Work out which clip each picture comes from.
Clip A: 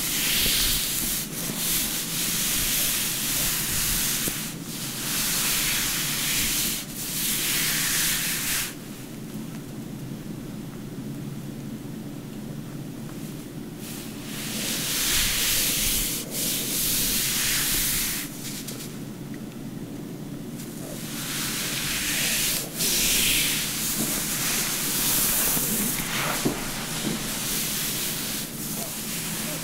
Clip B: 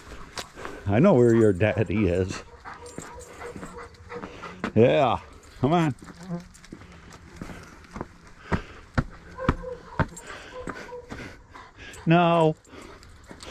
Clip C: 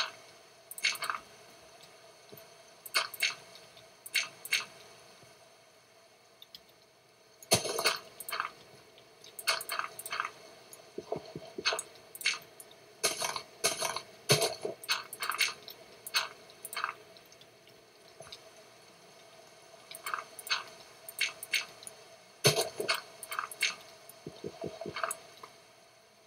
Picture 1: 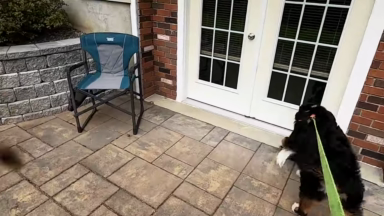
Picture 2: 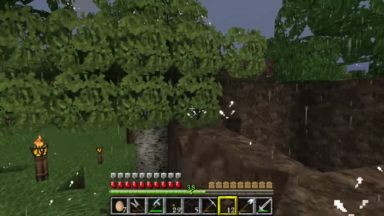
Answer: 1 B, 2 C